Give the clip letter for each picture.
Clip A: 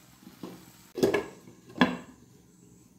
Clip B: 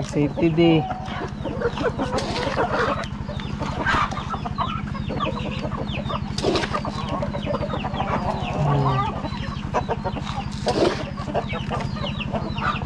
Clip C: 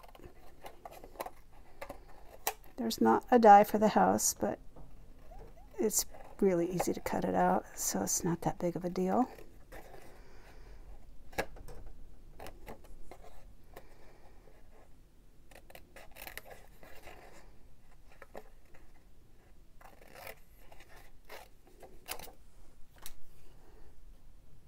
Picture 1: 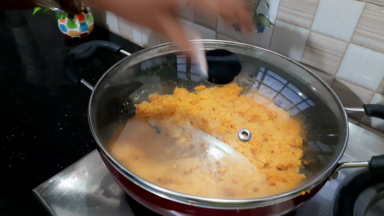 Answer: A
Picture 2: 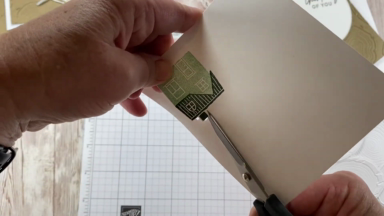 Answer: C